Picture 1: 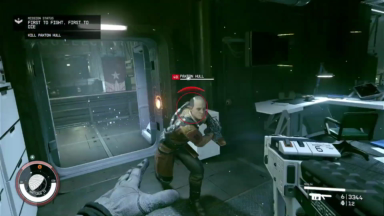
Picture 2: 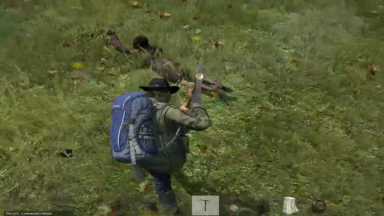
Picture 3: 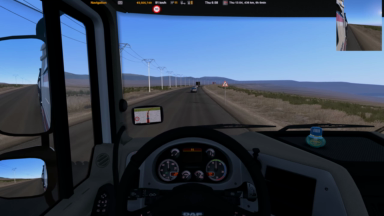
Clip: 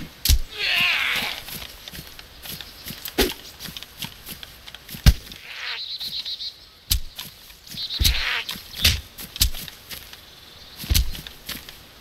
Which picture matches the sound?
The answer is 2